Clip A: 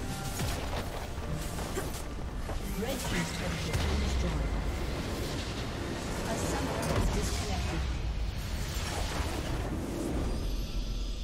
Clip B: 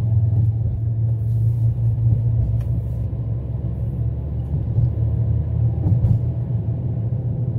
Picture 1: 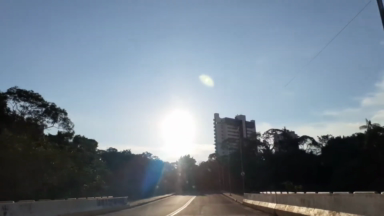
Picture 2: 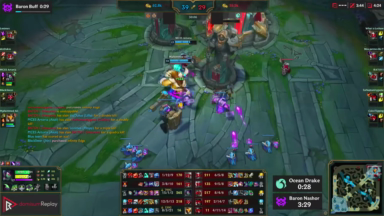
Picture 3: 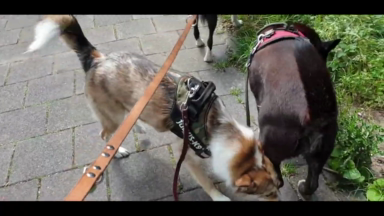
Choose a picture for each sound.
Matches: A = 2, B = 1